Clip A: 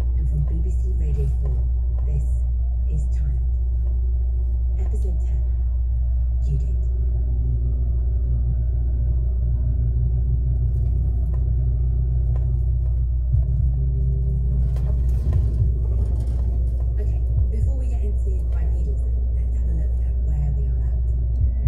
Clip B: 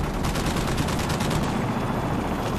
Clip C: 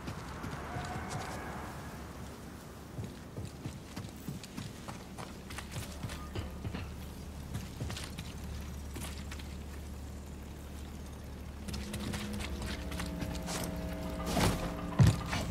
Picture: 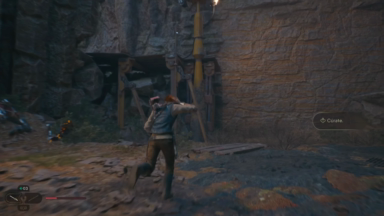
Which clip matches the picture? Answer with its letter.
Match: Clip C